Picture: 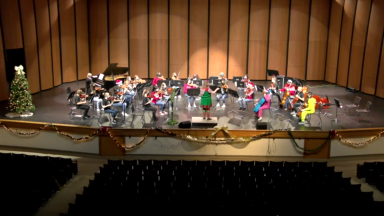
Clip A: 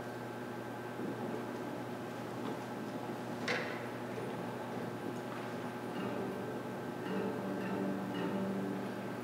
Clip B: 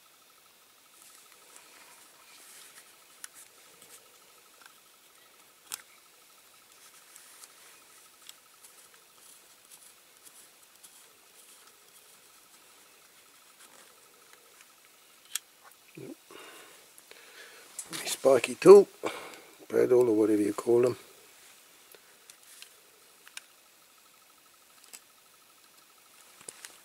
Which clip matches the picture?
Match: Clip A